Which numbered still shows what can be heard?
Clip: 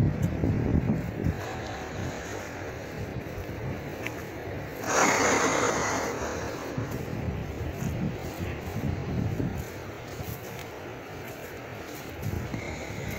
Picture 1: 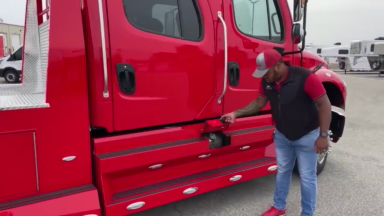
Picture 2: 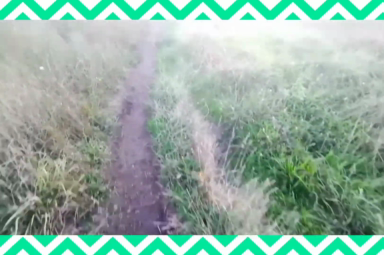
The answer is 2